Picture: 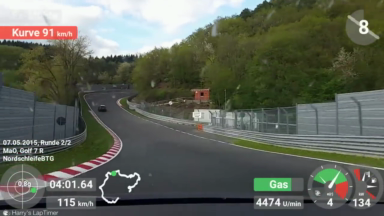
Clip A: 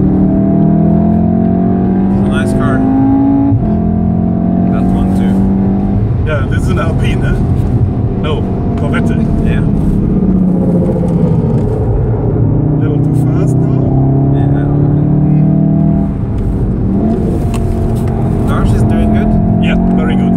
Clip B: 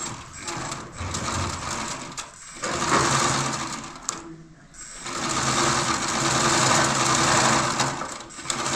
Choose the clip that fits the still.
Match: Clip A